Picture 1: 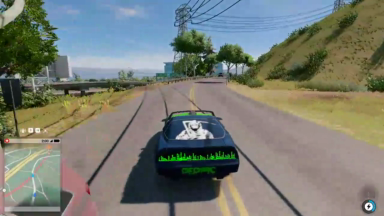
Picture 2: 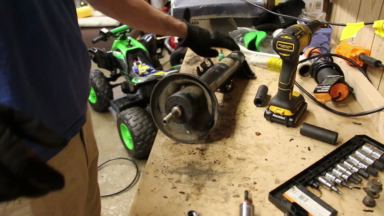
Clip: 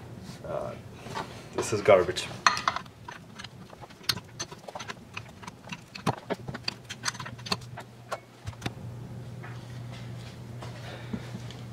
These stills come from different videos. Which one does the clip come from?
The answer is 2